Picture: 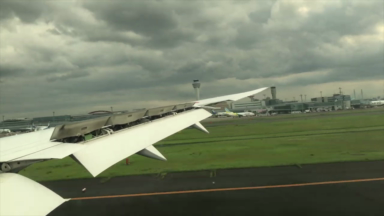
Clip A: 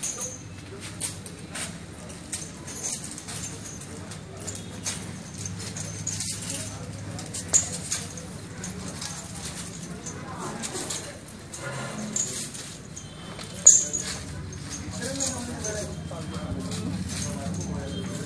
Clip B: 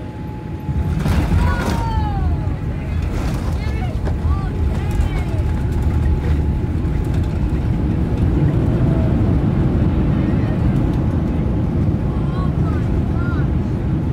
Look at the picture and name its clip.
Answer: B